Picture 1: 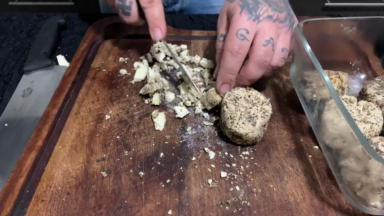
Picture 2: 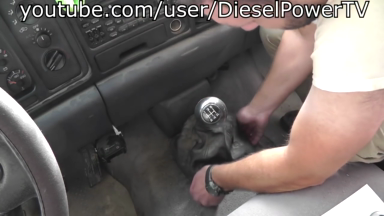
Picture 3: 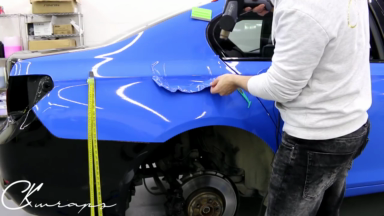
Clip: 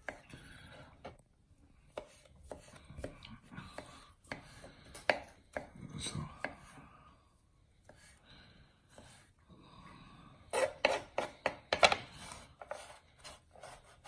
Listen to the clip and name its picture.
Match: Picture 1